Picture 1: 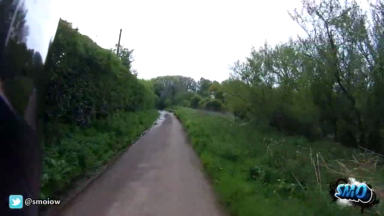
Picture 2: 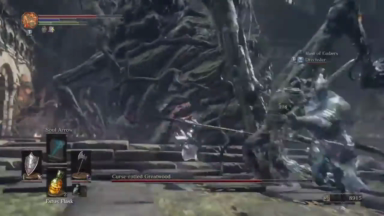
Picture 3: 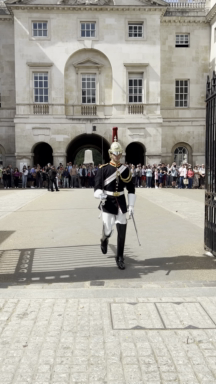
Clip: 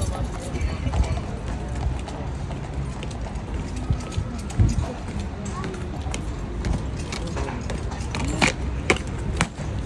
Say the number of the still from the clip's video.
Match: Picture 3